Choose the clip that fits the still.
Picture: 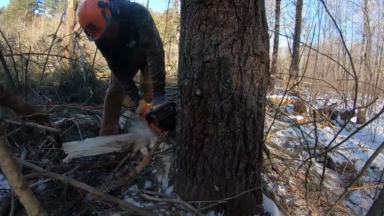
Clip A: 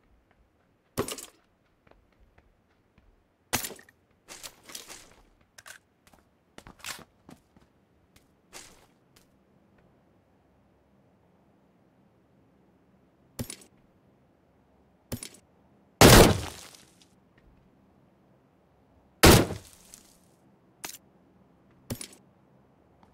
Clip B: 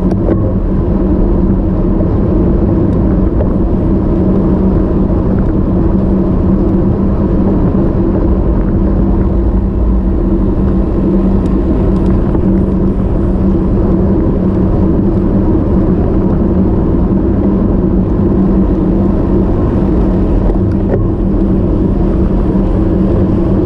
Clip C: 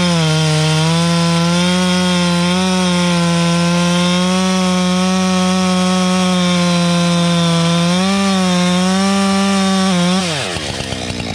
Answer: C